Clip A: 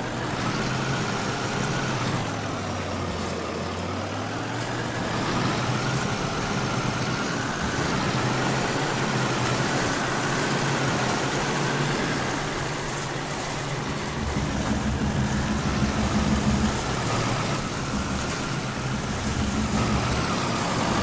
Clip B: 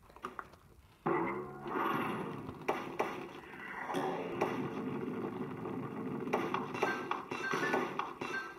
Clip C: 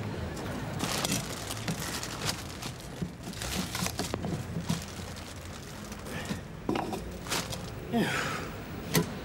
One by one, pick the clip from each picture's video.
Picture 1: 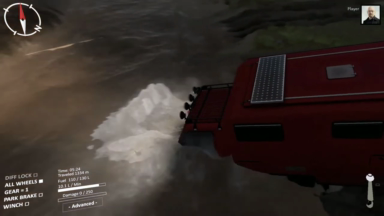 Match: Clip A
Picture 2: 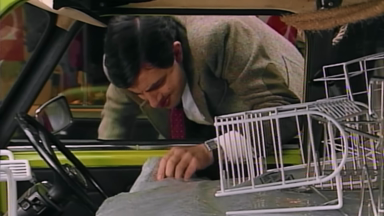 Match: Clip C